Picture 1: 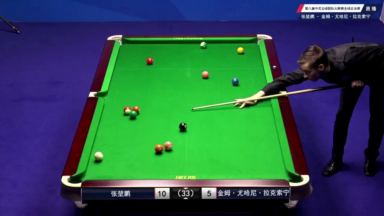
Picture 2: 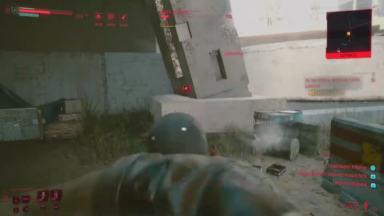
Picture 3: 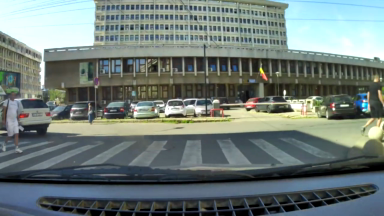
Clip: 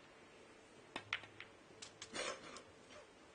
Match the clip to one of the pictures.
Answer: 1